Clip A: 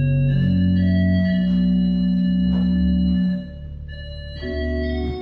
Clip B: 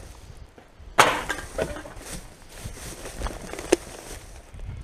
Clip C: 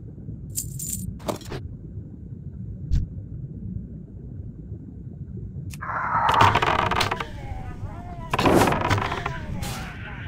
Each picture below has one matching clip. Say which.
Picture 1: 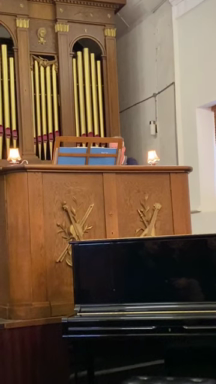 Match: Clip A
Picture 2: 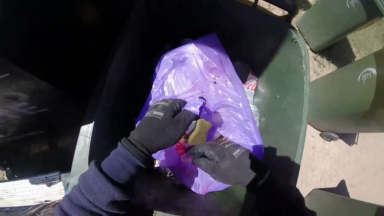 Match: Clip B